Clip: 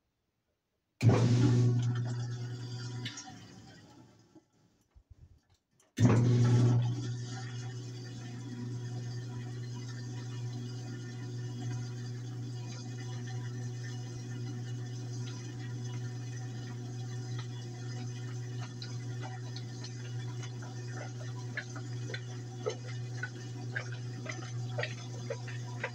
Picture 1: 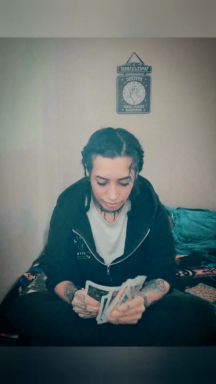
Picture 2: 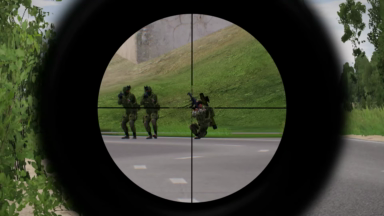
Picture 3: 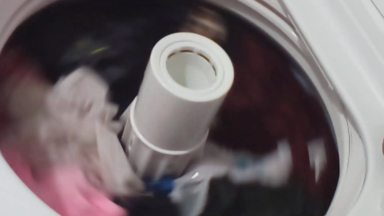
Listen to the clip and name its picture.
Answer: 3